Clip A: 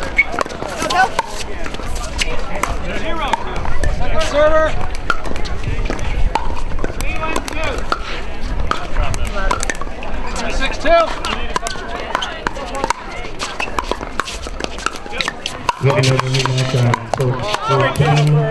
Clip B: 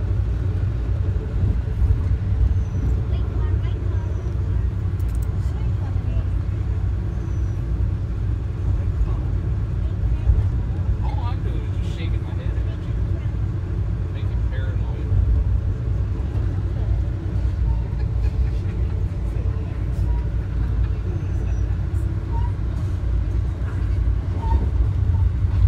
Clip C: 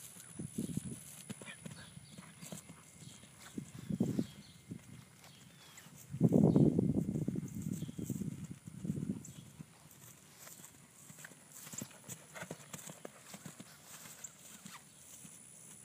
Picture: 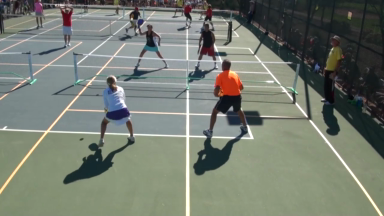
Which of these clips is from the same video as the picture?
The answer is A